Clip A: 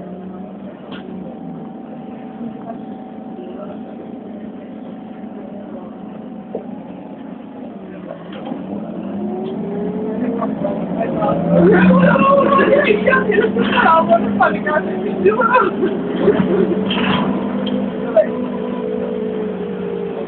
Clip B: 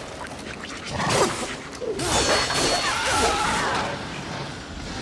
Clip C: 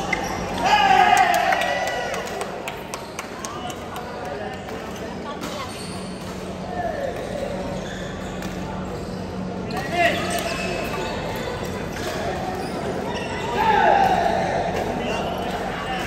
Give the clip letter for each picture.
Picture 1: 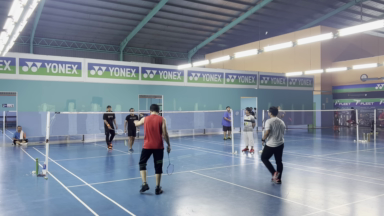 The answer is C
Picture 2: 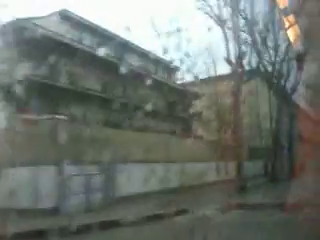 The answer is A